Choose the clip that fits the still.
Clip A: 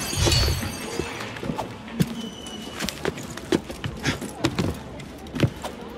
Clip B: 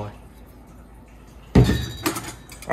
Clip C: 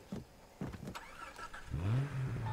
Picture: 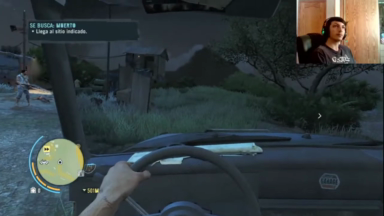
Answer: C